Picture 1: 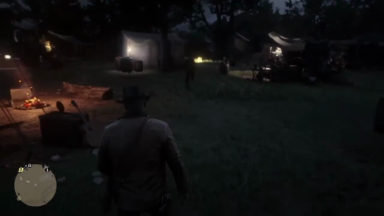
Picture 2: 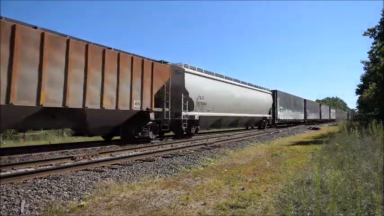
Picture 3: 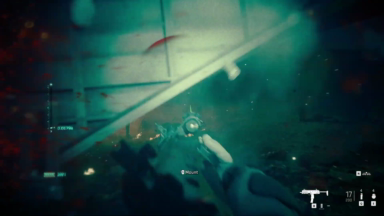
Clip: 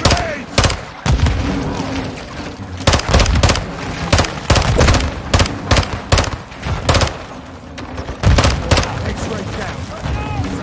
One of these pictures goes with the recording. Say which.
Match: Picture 3